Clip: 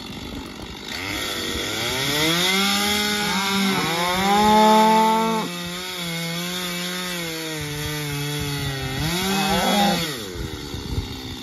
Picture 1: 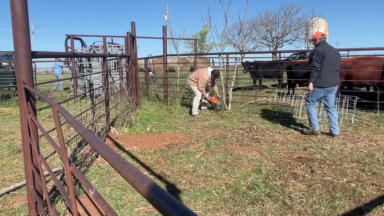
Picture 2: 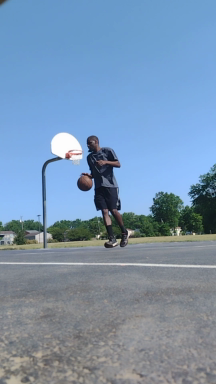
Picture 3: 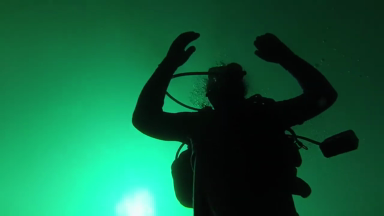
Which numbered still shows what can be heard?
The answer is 1